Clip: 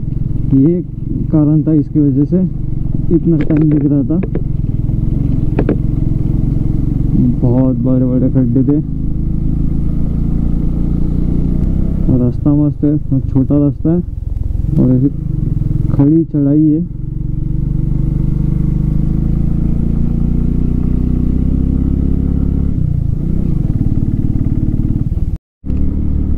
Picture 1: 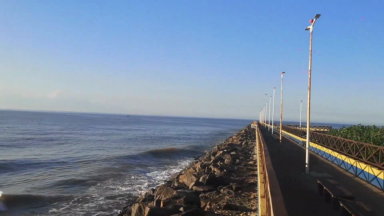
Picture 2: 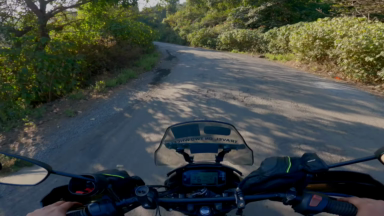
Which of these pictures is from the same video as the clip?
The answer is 2